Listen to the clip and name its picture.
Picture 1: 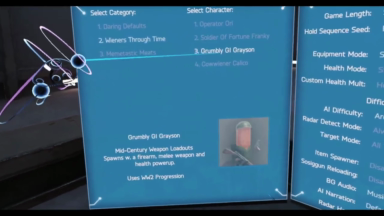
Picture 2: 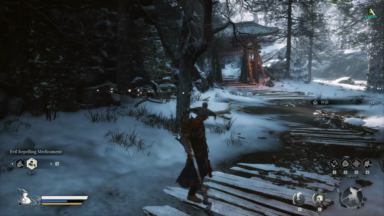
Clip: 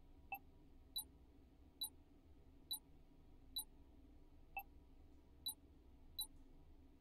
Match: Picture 1